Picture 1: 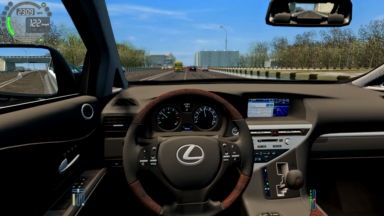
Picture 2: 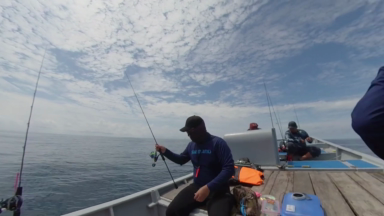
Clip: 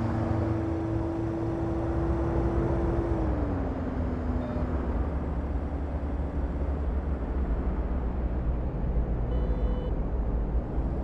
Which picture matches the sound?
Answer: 1